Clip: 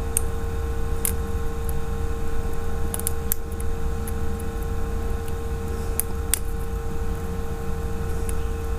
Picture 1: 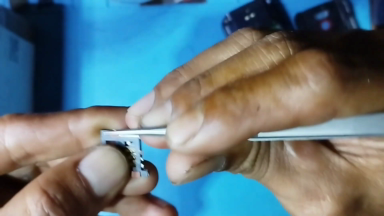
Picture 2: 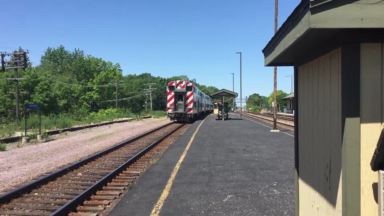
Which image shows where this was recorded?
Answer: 1